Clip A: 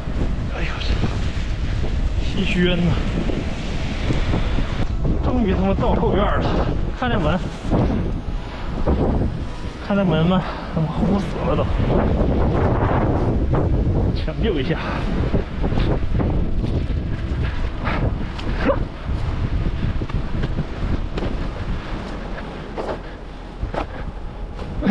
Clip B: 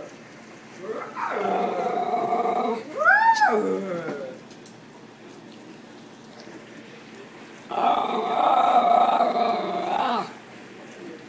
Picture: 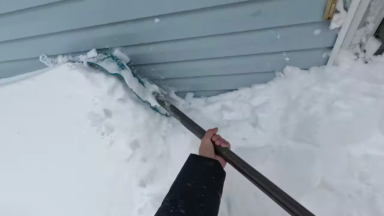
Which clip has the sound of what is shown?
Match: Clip A